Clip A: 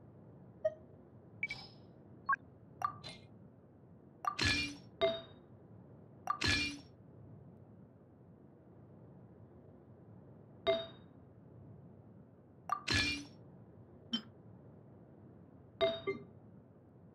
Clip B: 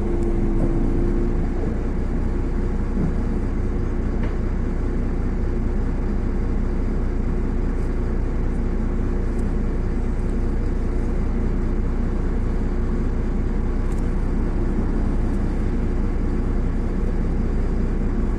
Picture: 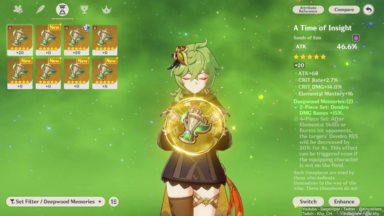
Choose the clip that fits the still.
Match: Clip A